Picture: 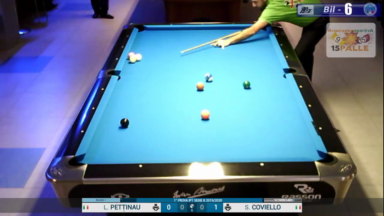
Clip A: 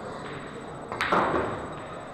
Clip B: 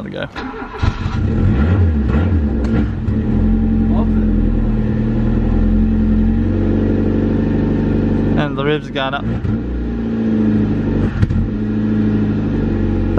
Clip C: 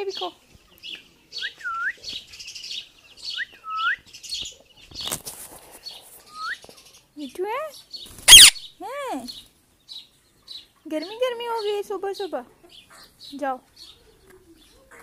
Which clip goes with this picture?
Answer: A